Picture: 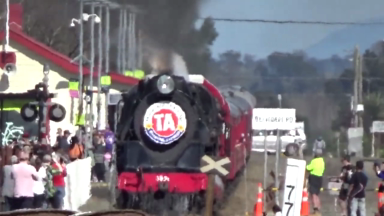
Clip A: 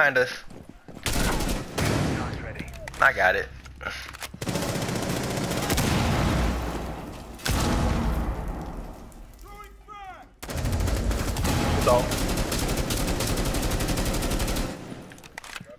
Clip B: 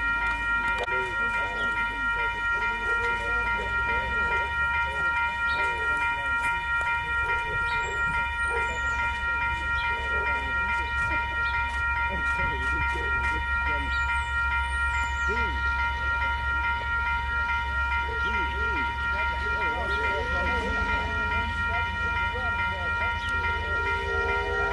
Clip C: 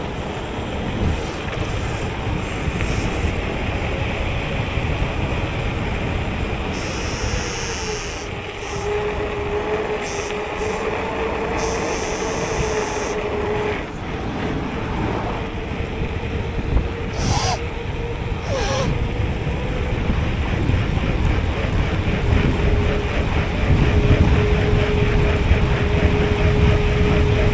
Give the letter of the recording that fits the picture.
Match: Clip B